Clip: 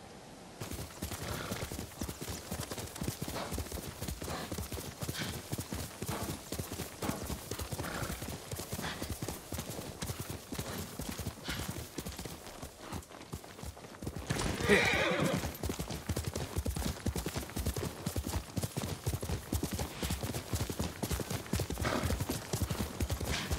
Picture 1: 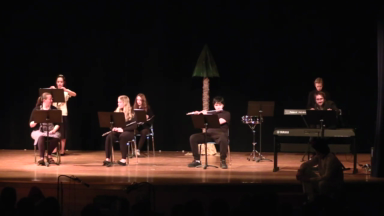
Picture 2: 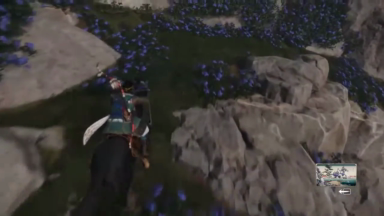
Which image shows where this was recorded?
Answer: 2